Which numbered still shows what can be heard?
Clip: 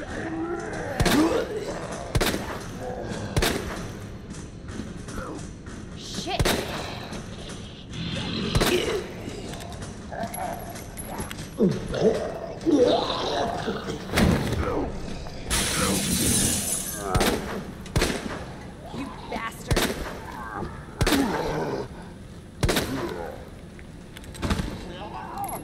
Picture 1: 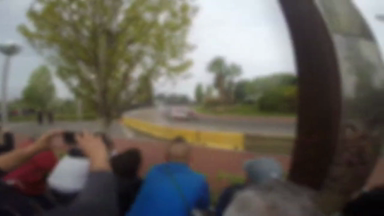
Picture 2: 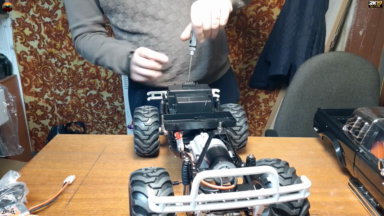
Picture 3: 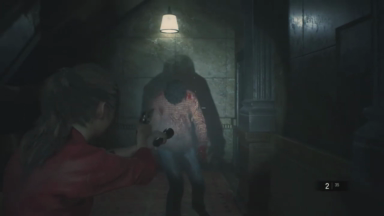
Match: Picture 3